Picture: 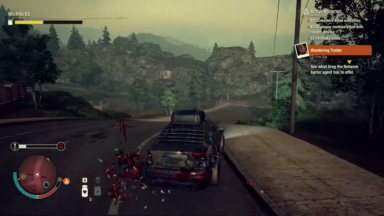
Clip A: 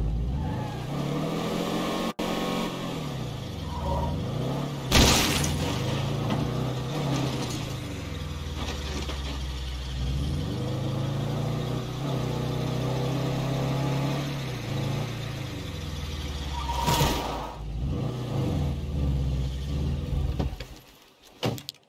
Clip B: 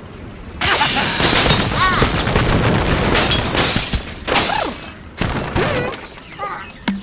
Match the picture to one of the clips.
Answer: A